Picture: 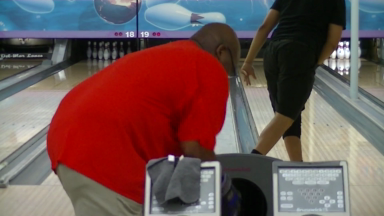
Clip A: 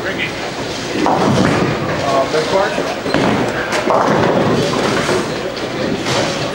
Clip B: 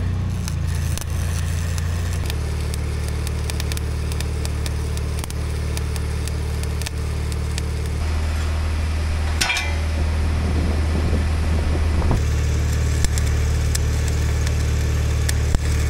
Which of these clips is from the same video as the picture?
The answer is A